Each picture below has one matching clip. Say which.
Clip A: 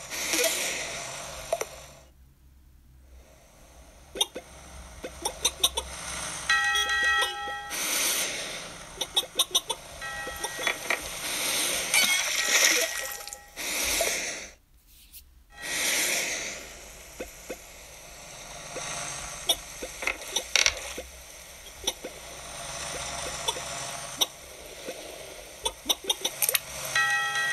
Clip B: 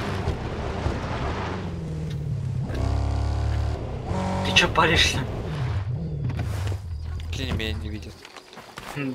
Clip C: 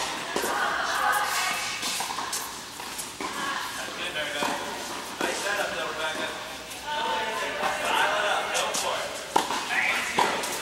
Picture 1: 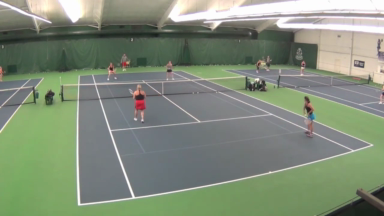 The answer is C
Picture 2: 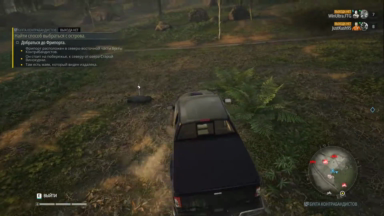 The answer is B